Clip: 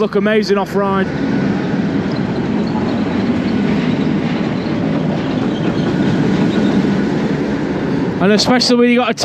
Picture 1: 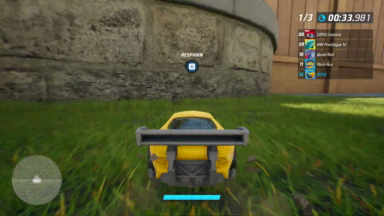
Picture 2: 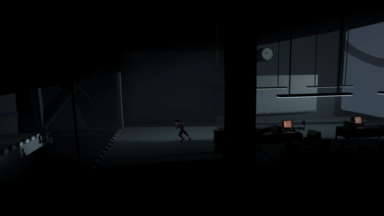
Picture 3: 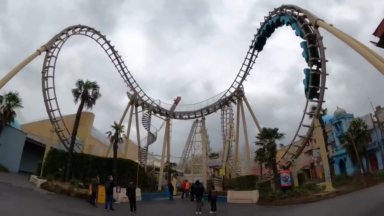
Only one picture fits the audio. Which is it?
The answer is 3